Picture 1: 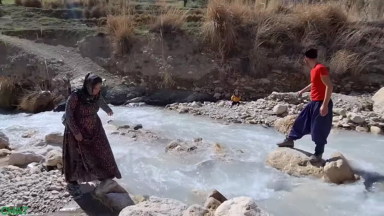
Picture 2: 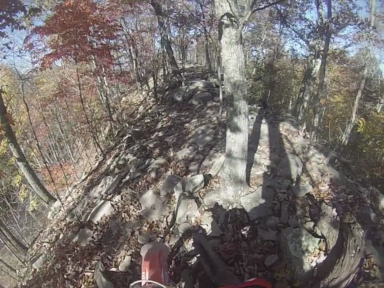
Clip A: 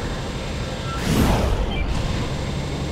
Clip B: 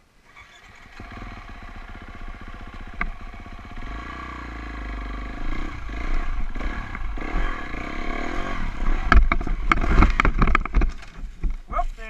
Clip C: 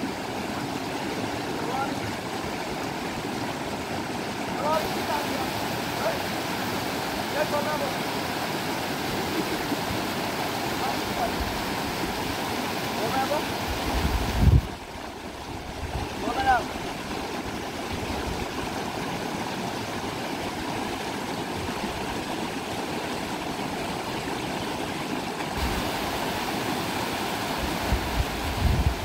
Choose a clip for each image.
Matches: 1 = C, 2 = B